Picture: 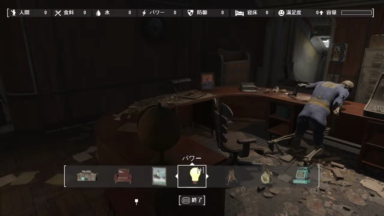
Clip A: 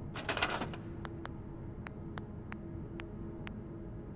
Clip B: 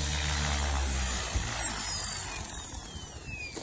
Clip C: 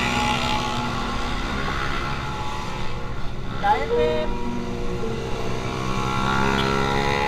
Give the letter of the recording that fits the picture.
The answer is A